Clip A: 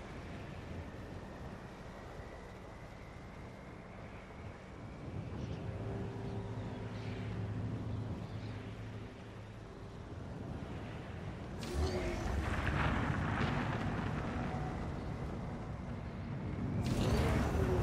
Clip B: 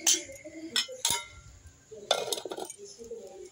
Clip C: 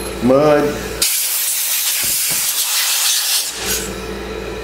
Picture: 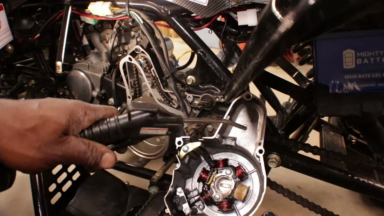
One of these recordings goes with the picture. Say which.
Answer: C